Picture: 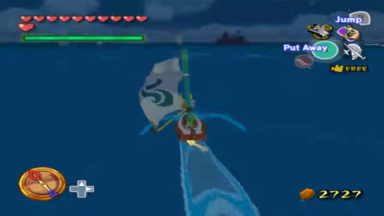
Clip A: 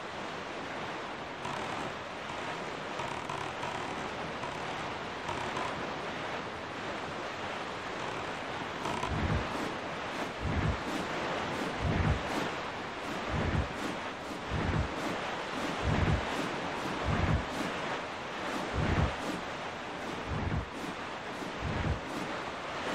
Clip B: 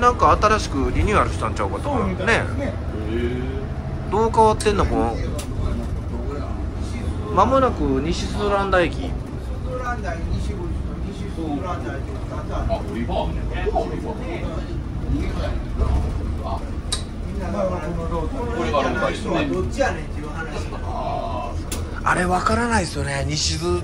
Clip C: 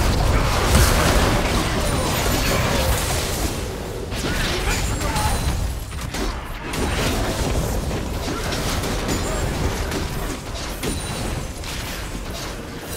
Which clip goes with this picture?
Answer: A